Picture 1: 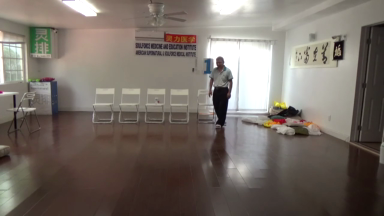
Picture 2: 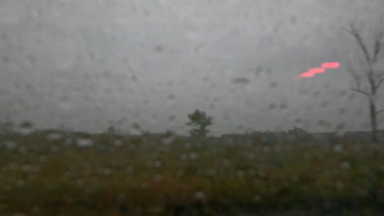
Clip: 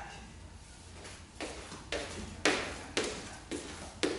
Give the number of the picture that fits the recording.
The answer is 1